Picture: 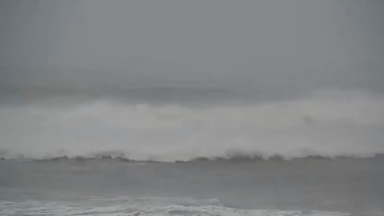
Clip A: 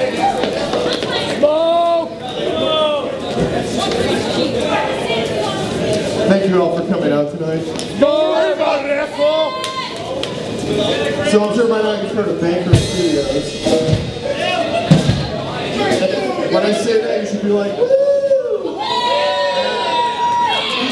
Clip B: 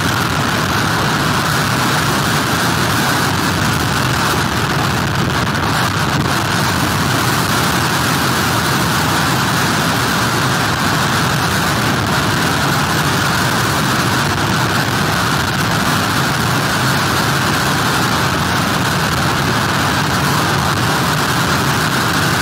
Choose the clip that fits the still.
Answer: B